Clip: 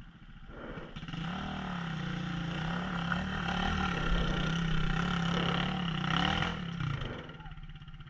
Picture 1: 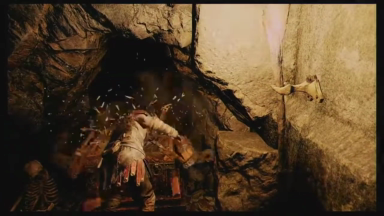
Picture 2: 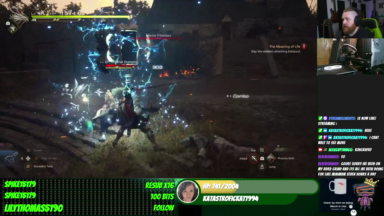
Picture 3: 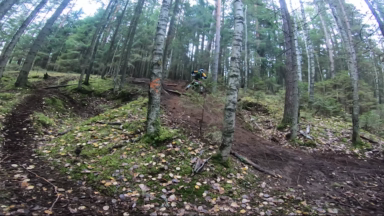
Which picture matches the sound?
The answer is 3